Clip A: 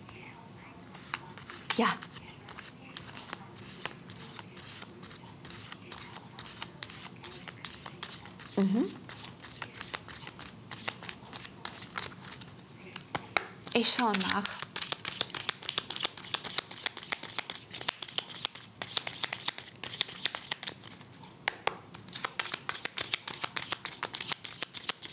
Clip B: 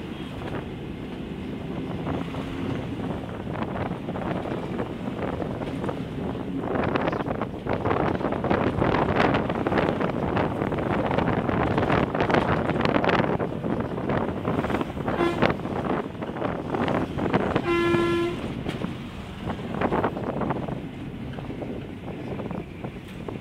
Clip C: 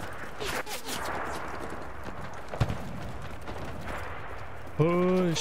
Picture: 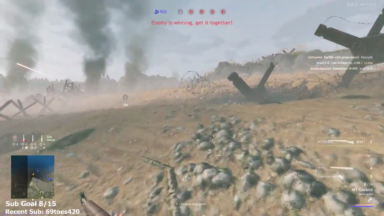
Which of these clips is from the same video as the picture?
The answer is C